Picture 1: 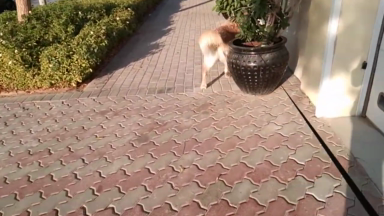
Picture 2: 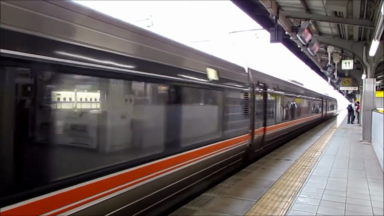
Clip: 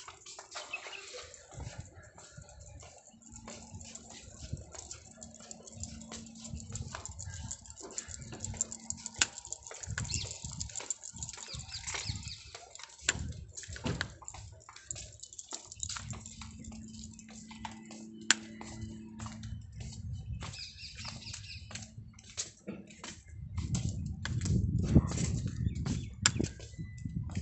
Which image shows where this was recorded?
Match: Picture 1